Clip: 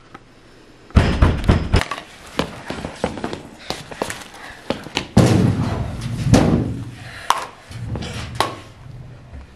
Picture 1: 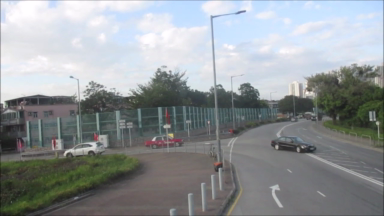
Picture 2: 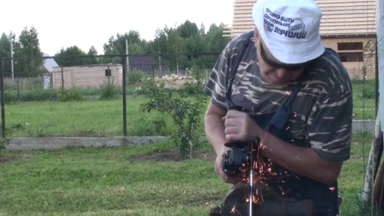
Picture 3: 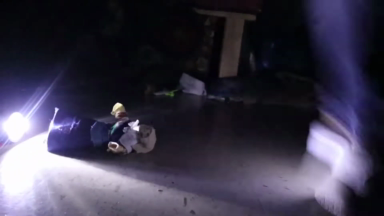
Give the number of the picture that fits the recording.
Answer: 3